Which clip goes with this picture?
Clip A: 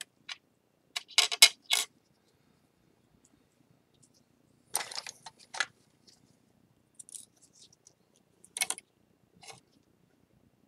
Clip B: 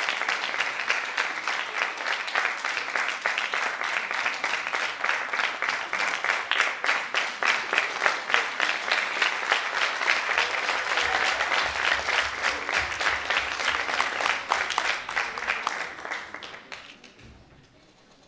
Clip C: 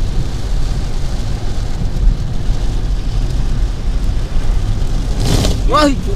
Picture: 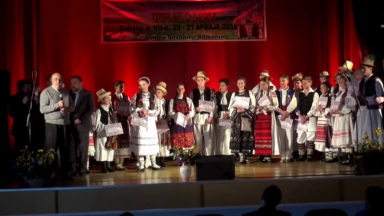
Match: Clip B